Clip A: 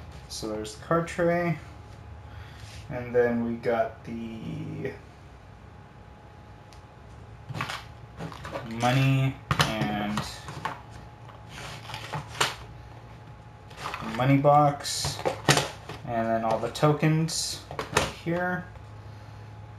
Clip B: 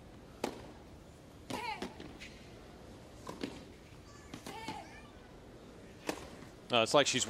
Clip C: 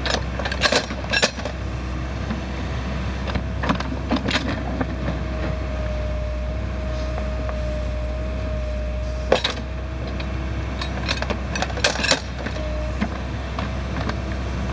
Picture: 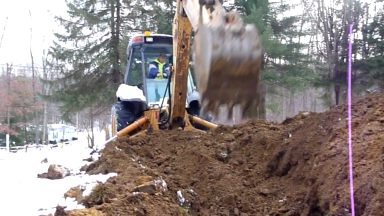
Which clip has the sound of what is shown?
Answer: C